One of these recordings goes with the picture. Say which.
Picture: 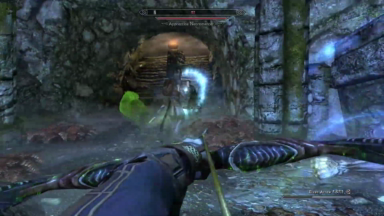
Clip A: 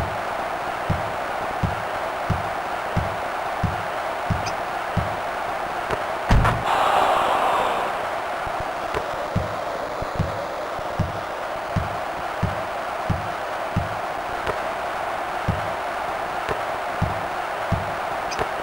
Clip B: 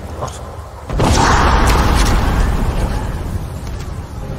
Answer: B